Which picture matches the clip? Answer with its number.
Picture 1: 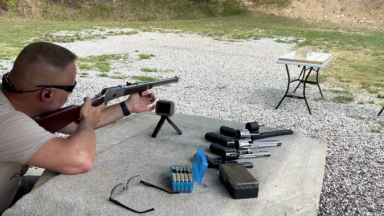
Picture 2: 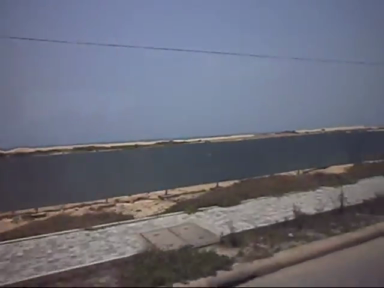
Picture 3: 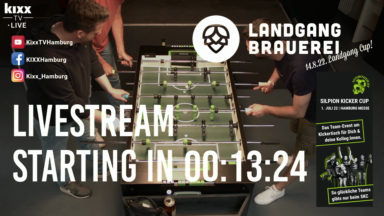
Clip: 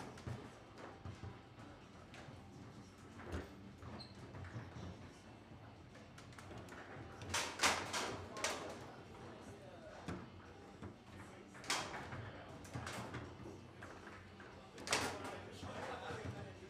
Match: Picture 3